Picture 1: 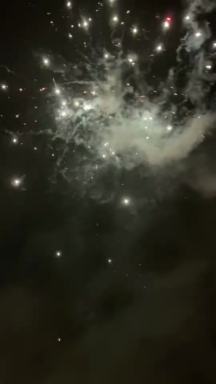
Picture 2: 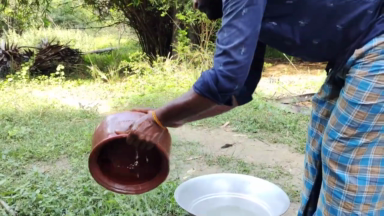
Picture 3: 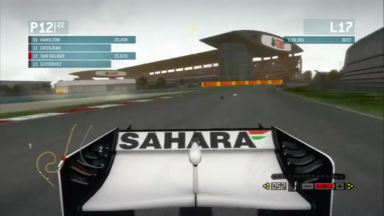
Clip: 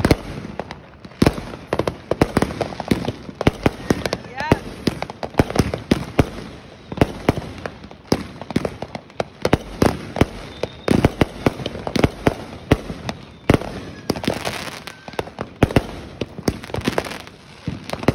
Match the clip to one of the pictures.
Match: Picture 1